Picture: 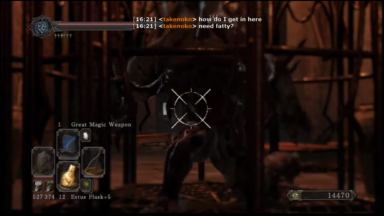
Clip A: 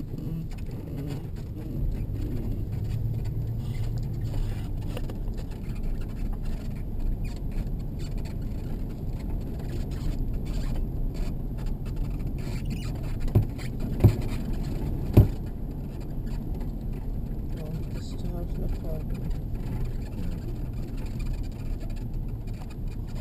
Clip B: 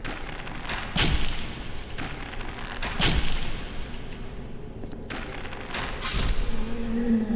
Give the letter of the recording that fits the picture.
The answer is B